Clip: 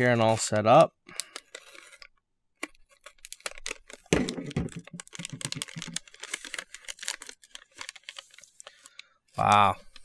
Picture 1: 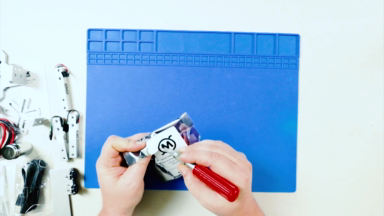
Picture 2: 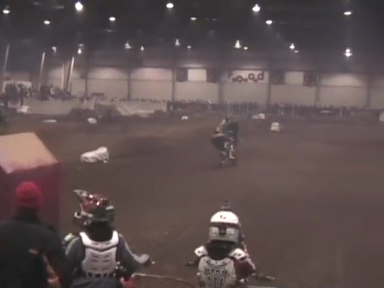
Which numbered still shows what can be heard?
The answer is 1